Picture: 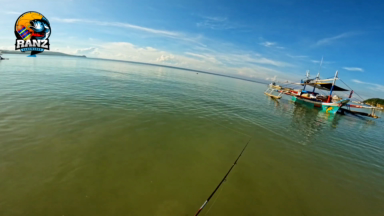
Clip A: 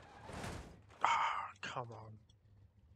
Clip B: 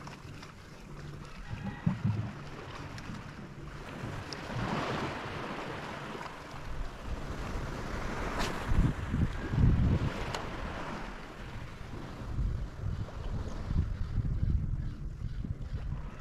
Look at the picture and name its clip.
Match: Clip B